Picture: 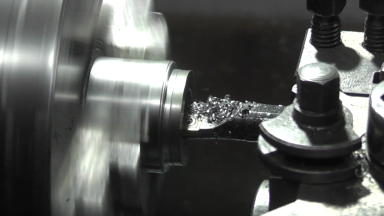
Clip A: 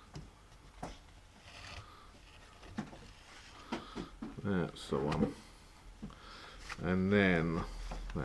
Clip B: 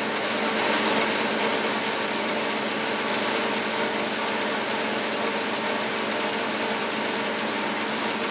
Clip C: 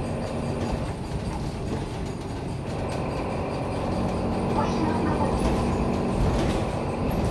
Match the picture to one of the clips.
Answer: B